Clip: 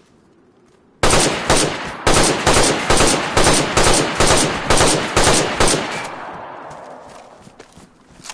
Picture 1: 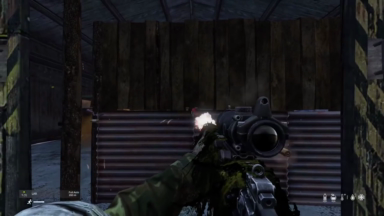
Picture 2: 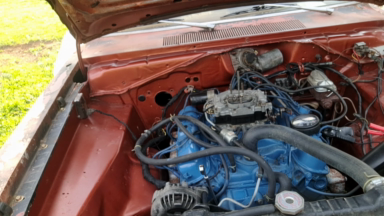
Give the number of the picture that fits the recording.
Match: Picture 1